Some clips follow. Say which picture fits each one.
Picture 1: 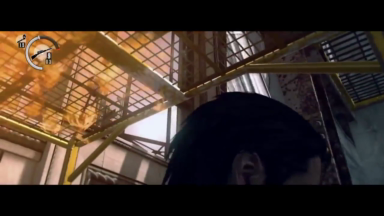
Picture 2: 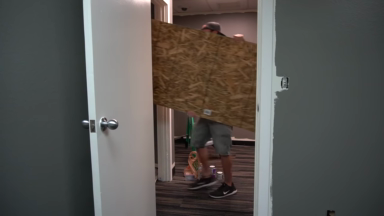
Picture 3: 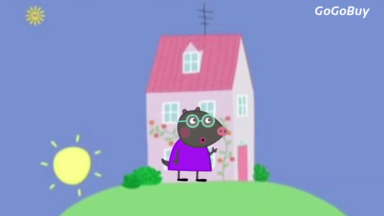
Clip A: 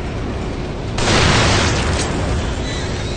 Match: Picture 1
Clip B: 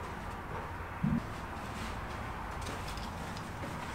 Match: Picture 2